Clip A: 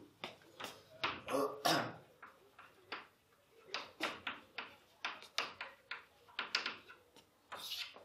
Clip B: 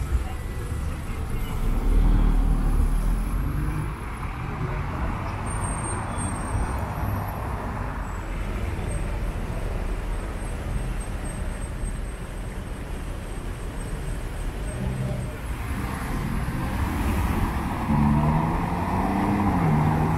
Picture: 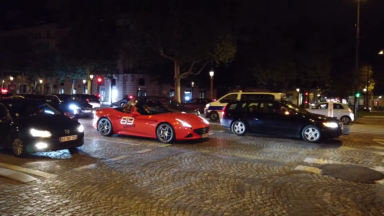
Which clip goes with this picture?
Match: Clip B